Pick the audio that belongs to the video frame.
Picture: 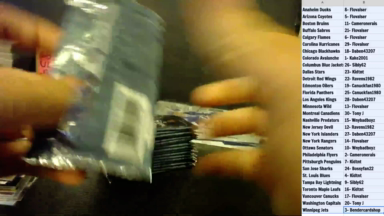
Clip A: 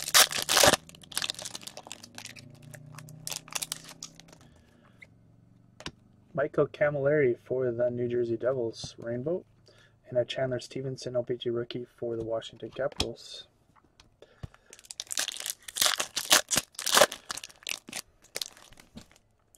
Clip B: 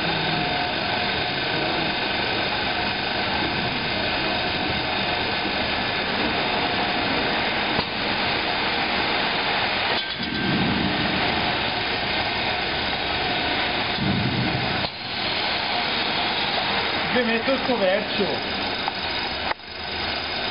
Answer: A